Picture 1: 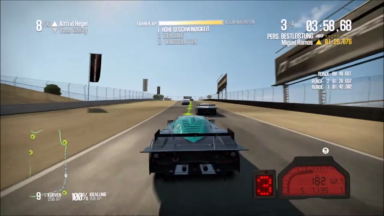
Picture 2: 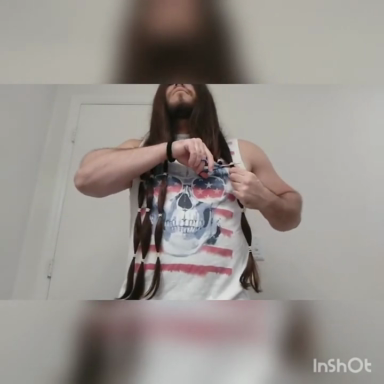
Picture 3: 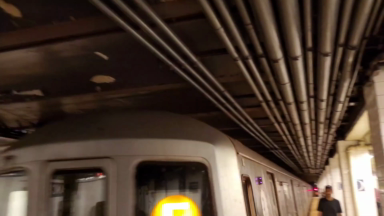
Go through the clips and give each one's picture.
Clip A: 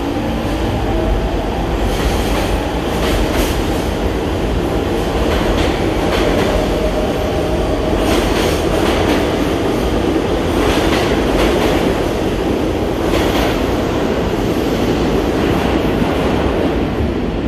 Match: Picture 3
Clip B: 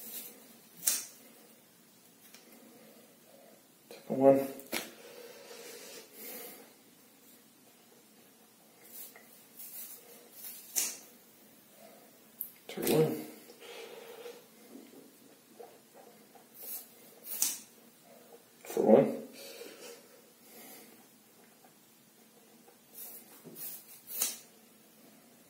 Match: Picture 2